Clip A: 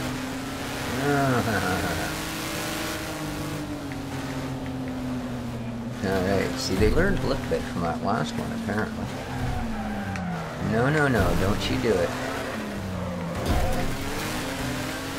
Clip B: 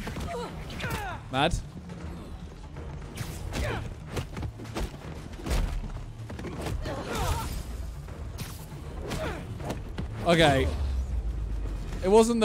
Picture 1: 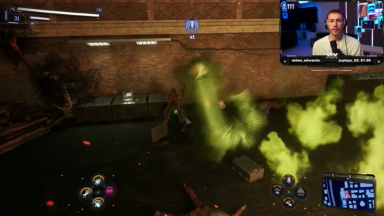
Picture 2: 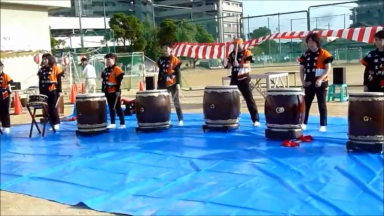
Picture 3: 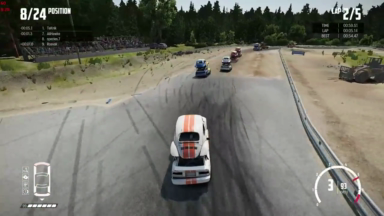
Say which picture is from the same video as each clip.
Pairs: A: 3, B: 1